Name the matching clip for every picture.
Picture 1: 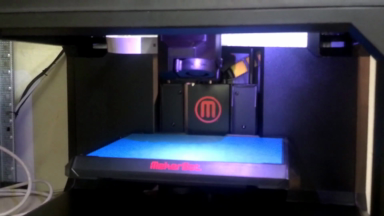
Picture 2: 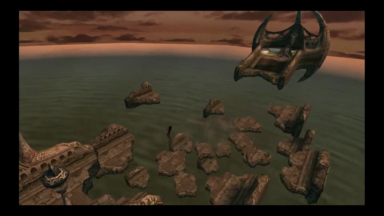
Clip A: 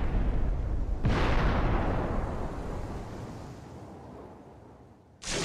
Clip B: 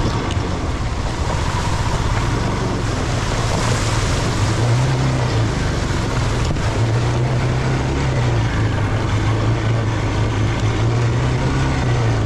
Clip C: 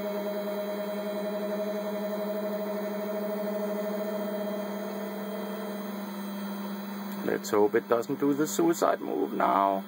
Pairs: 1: C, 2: A